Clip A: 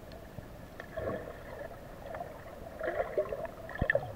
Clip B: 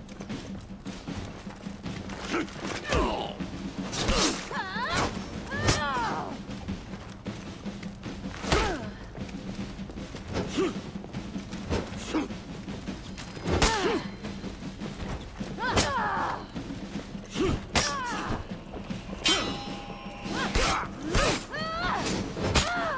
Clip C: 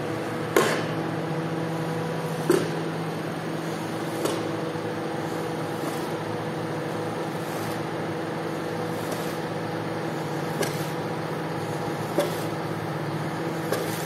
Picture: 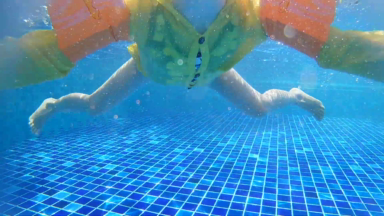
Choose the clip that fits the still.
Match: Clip A